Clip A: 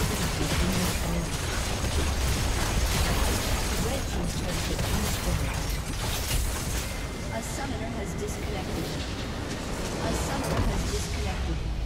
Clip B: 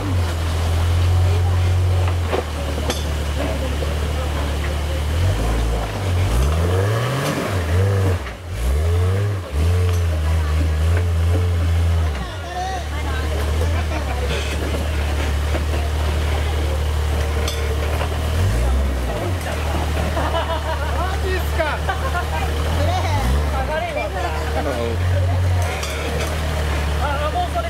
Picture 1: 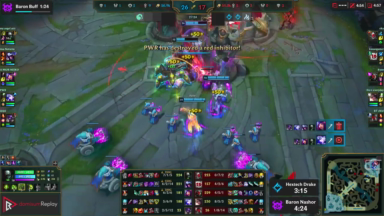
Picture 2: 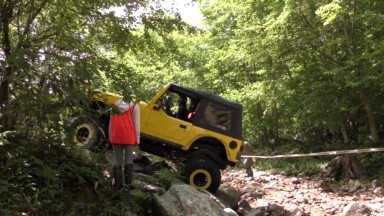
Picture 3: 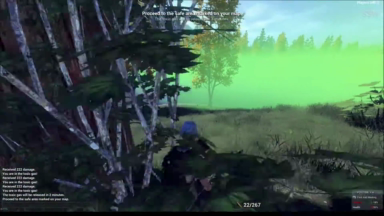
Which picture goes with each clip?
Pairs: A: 1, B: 2